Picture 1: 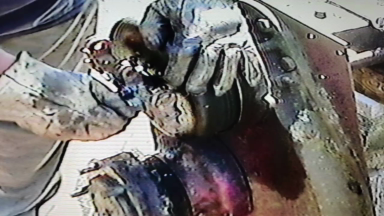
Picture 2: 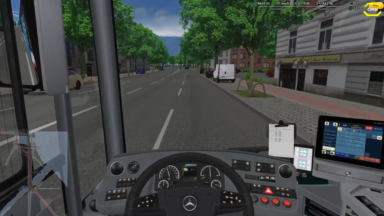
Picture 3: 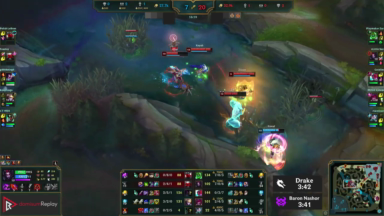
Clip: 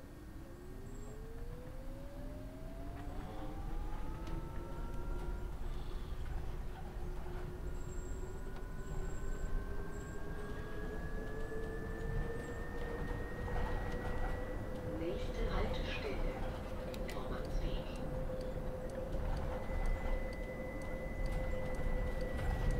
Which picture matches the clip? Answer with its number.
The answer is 2